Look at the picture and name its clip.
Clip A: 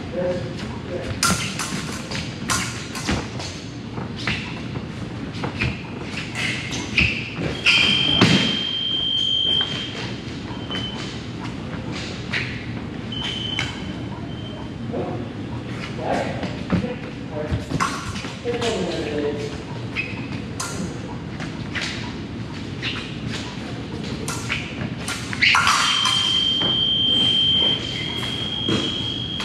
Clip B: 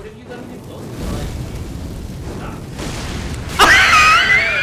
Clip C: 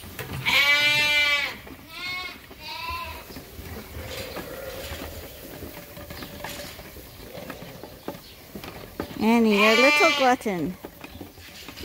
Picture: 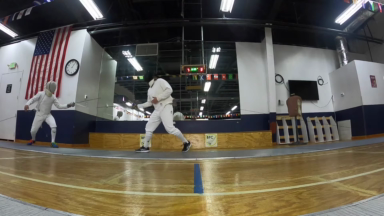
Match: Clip A